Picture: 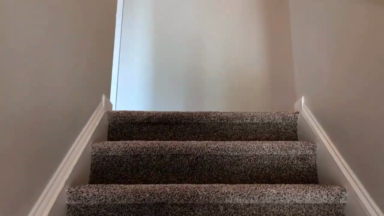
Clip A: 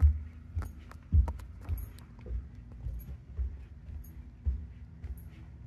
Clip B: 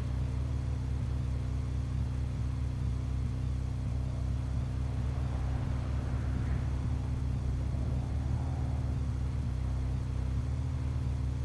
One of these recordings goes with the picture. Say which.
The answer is A